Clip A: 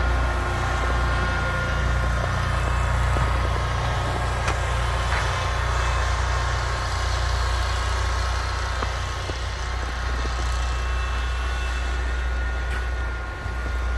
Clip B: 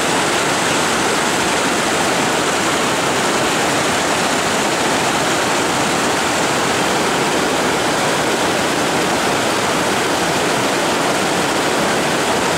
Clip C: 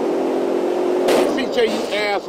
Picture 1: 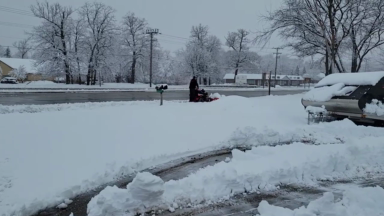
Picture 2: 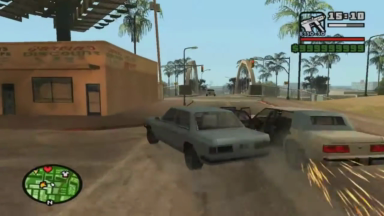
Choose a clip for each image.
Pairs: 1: A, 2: C